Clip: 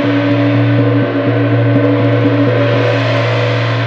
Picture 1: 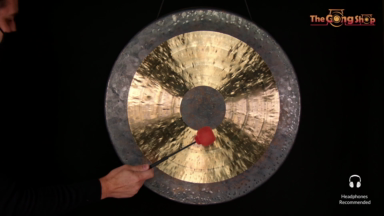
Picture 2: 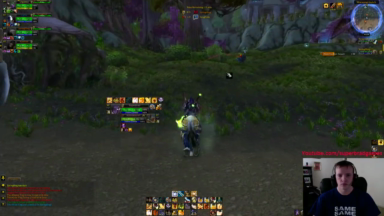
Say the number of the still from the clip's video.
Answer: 1